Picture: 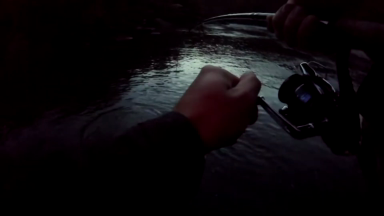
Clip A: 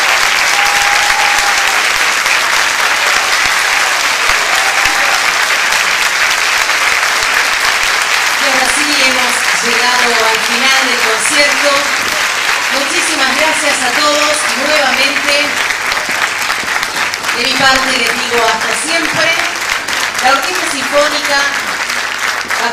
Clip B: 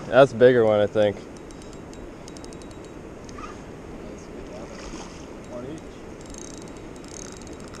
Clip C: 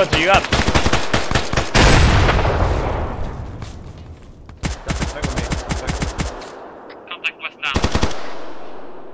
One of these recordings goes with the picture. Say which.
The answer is B